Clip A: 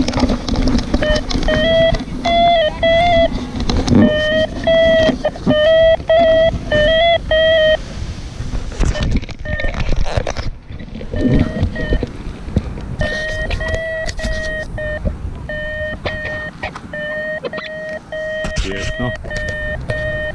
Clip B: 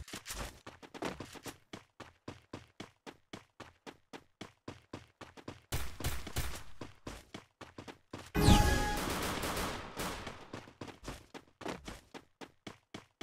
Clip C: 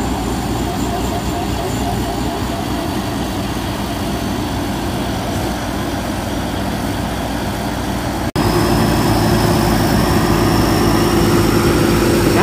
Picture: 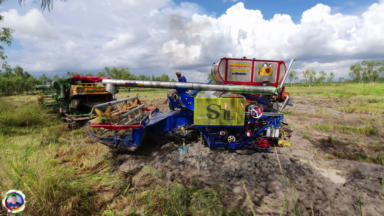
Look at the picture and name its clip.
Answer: C